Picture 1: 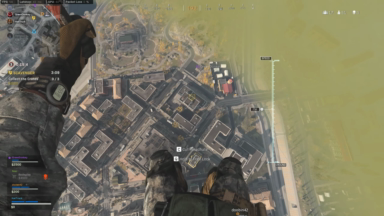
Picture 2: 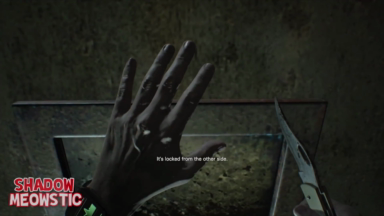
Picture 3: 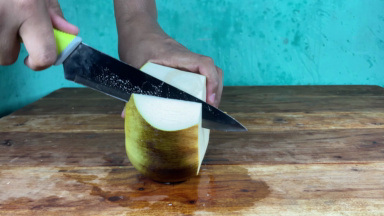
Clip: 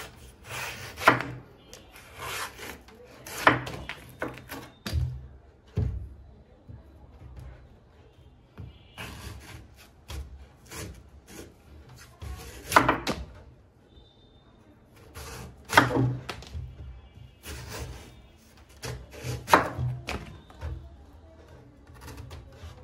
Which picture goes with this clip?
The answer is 3